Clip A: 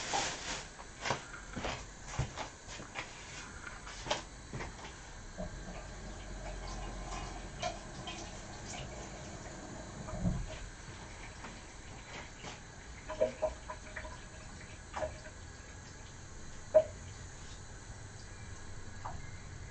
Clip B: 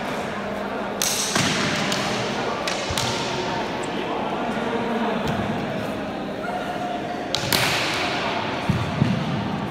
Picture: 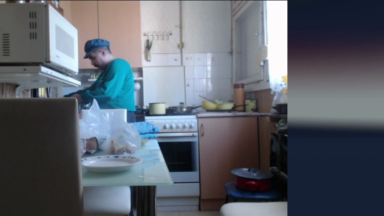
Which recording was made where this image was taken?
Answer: A